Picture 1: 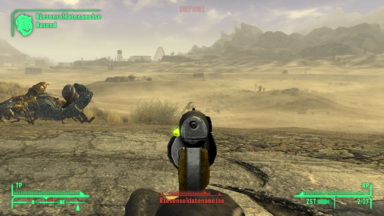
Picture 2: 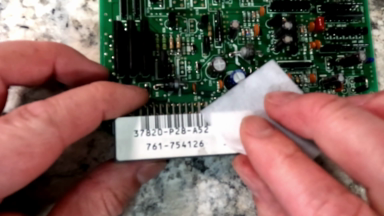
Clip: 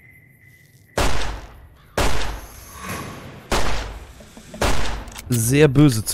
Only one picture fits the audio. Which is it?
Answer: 1